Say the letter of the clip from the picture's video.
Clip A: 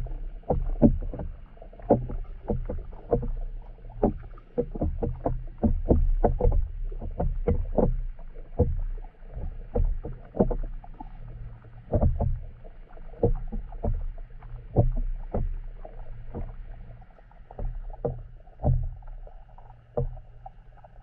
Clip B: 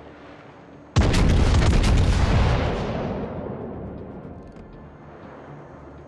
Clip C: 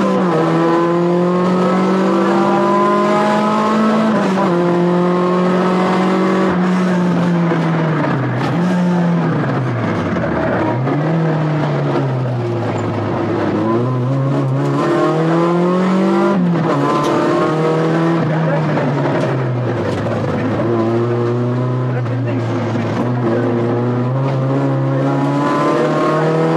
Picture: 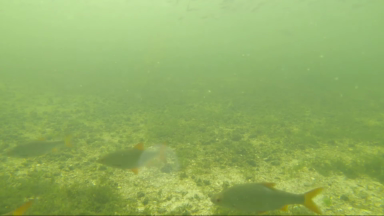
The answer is A